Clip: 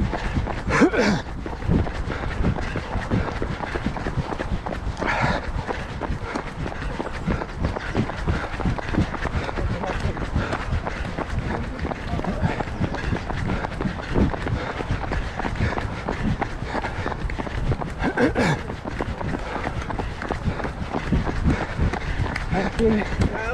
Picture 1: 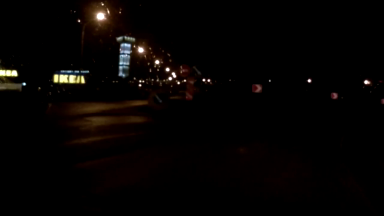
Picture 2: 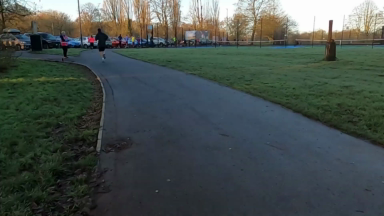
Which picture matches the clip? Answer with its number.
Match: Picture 2